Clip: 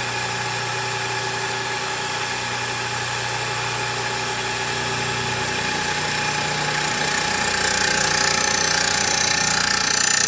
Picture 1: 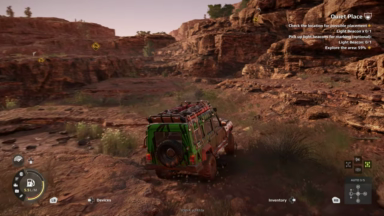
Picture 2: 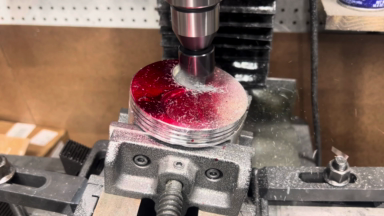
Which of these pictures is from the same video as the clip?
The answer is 2